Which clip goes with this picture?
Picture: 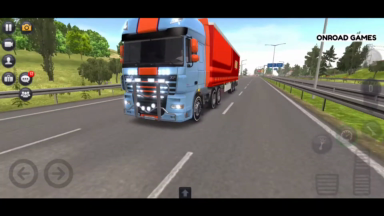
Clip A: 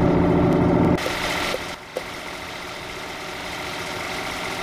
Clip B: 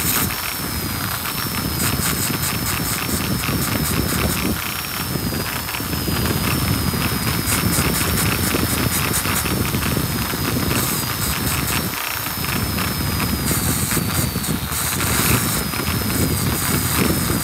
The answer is A